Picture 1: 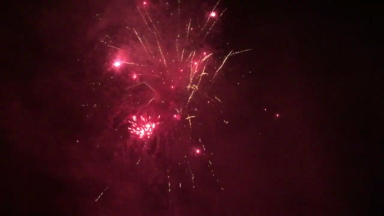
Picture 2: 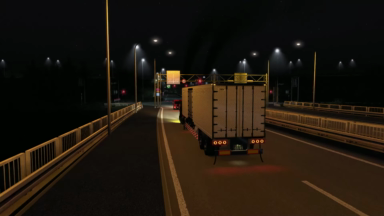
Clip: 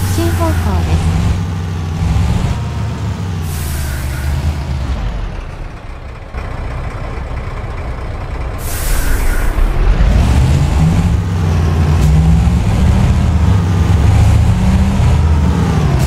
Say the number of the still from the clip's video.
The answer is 2